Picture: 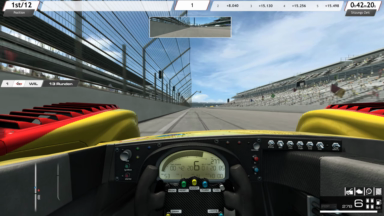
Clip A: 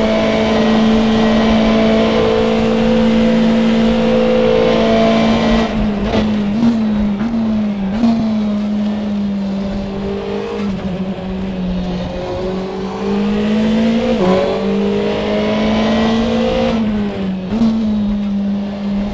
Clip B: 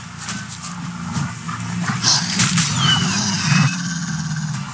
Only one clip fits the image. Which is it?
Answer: A